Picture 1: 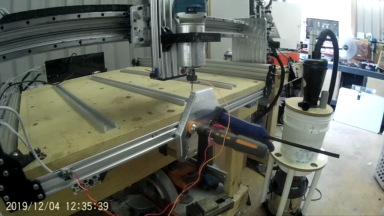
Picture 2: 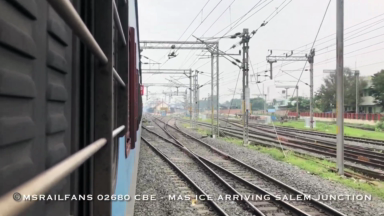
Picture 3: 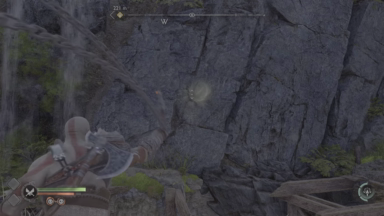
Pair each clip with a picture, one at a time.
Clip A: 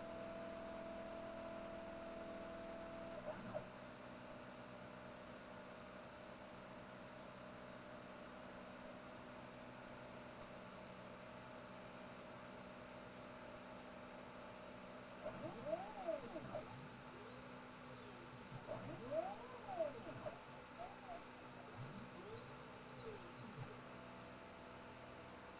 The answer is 1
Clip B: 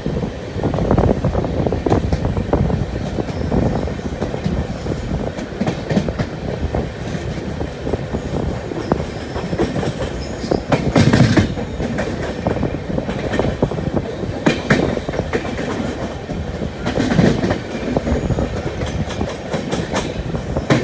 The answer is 2